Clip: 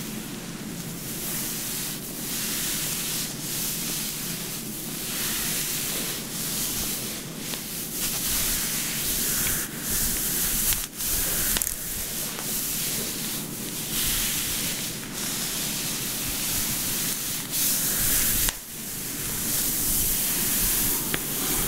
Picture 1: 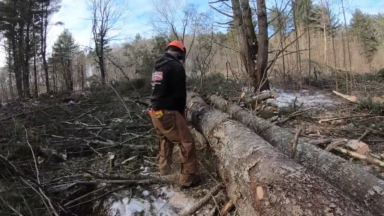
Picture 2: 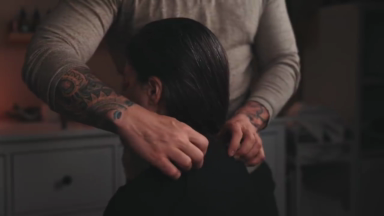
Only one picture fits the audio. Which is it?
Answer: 2